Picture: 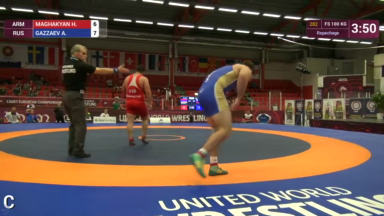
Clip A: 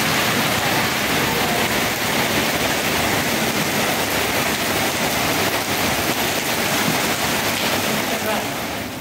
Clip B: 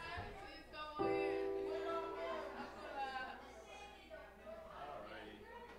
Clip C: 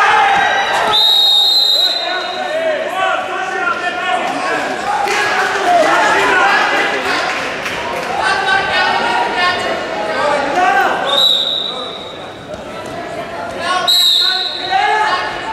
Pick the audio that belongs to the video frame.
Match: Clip C